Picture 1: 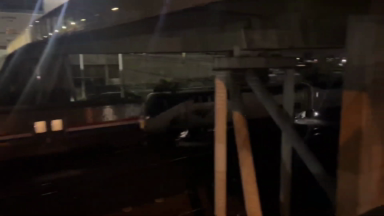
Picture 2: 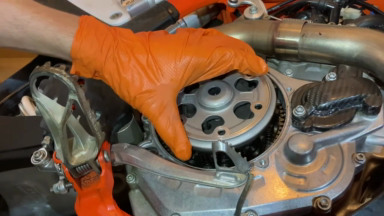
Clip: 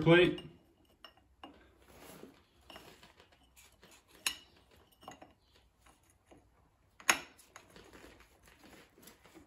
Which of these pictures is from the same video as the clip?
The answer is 2